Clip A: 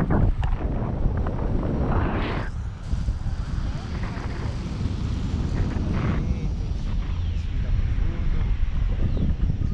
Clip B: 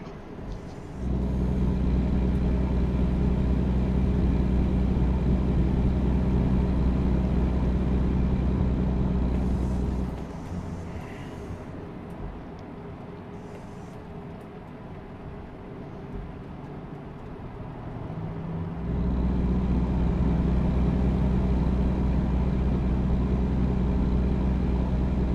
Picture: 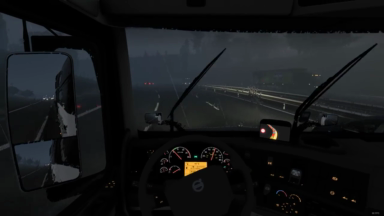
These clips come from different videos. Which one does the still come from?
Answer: B